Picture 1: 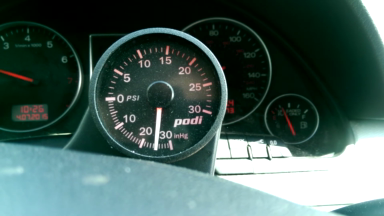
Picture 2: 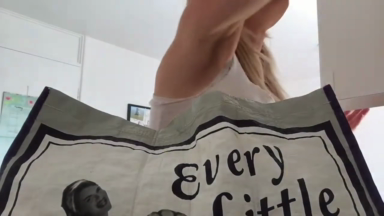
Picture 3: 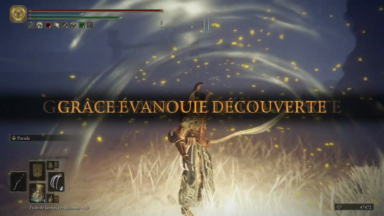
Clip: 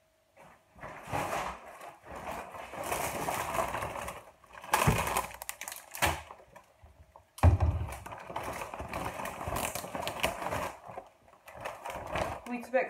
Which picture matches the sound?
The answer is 2